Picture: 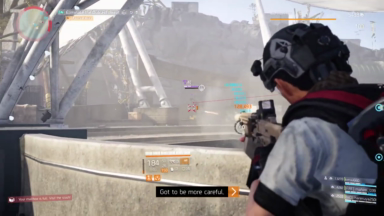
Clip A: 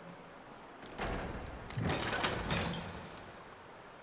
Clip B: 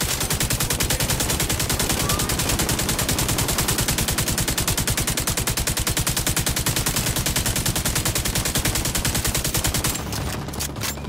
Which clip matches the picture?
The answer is B